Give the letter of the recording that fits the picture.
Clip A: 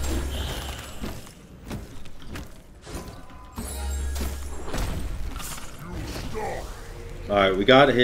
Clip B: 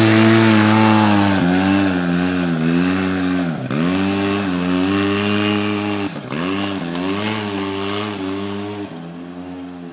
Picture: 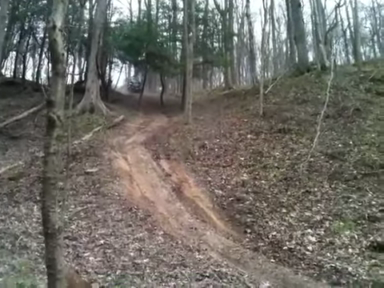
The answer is B